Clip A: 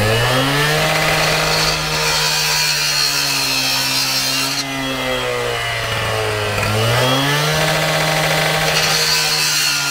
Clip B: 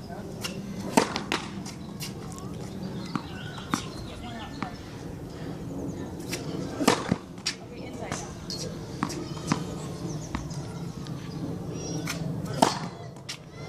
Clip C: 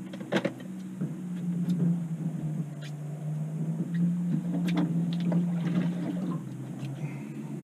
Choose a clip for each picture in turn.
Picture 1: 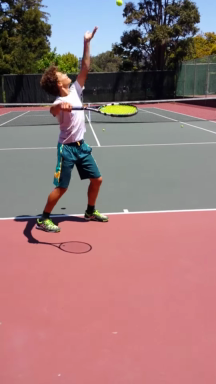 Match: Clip B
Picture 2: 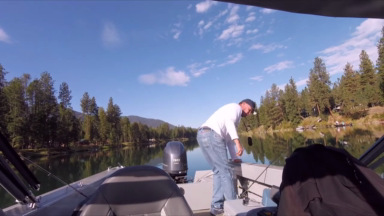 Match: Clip C